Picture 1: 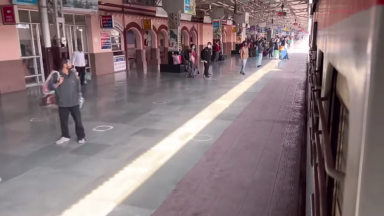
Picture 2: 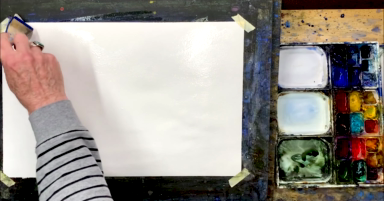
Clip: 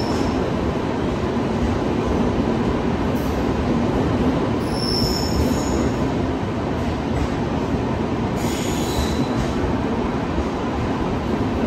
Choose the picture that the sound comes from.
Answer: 1